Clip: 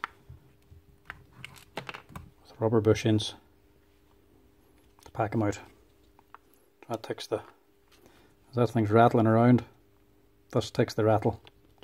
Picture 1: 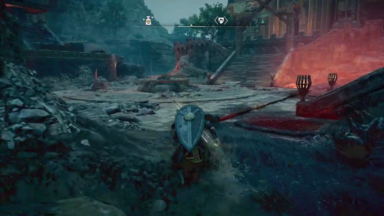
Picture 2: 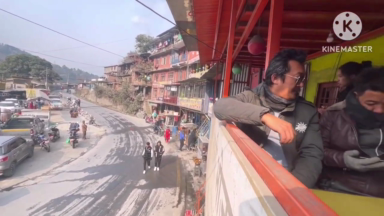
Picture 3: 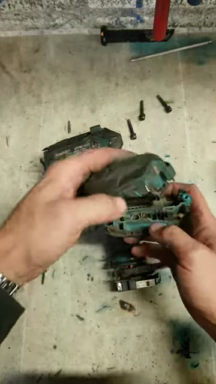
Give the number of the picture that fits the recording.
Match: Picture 3